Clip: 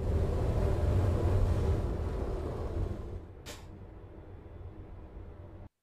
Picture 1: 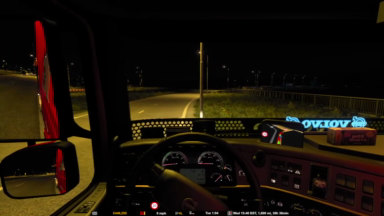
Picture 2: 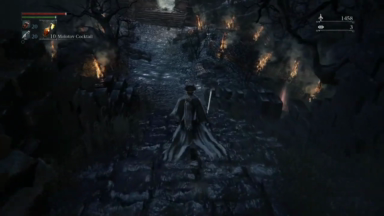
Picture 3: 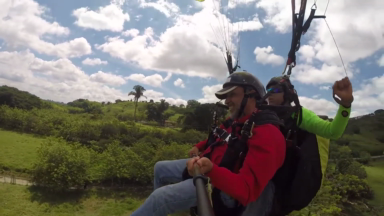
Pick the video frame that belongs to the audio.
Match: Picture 1